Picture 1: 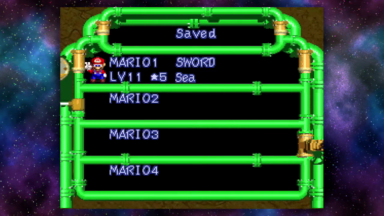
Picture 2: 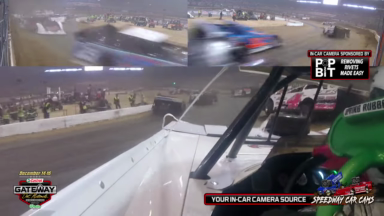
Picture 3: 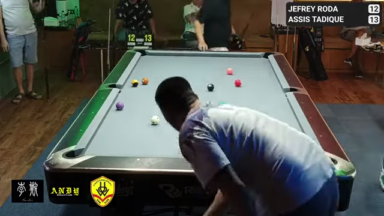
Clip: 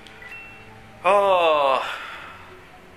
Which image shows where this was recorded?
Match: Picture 1